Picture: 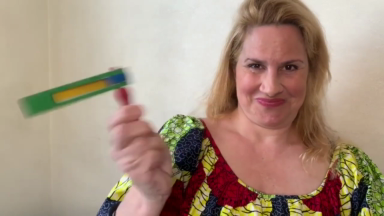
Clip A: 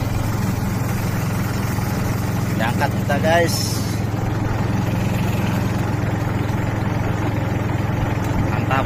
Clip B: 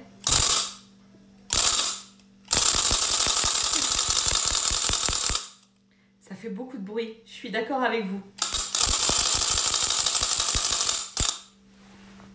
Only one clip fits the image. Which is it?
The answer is B